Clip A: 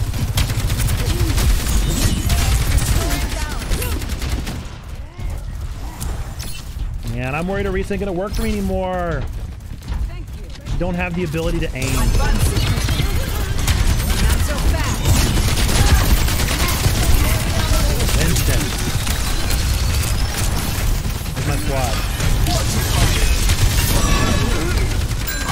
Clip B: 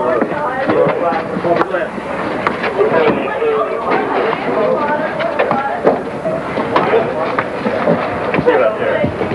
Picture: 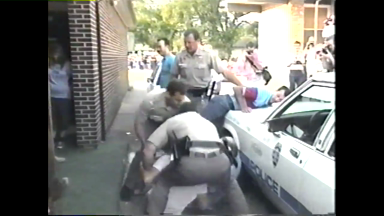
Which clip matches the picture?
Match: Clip B